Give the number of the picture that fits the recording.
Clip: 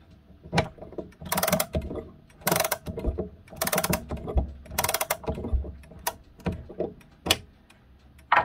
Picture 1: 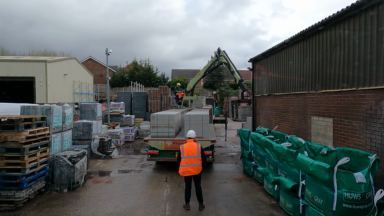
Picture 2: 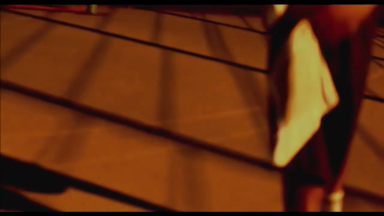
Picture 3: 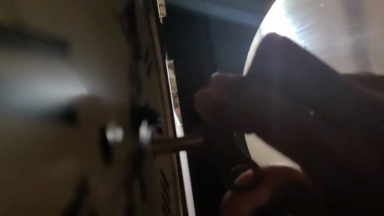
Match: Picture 3